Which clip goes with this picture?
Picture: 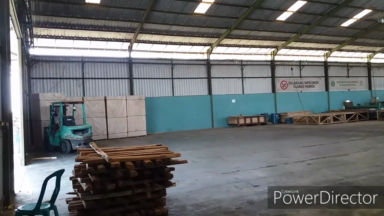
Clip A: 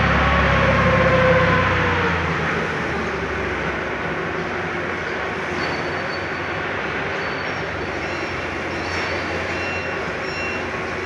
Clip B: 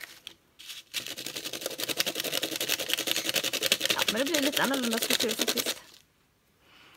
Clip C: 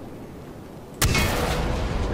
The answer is A